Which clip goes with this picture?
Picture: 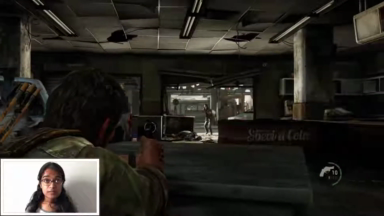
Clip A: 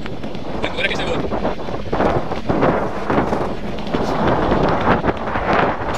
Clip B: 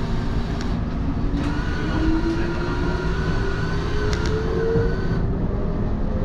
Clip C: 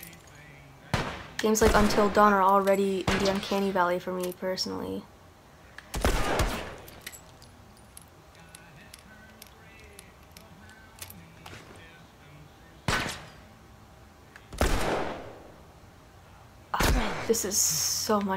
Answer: C